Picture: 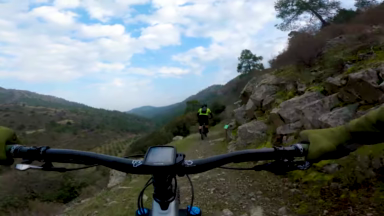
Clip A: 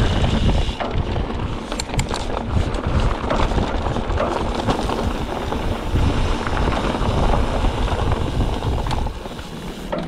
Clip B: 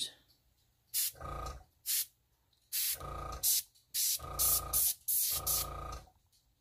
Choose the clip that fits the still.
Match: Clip A